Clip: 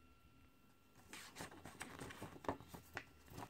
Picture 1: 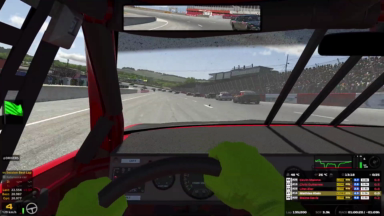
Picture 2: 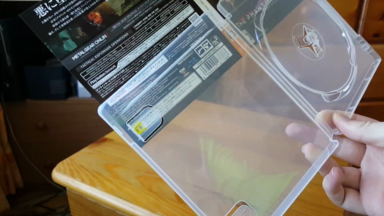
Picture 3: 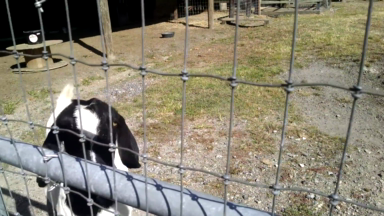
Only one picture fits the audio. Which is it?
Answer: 2